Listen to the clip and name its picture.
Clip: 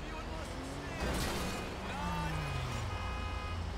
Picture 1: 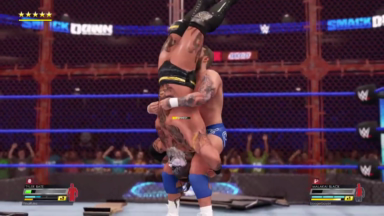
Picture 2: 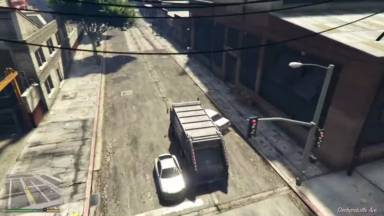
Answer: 2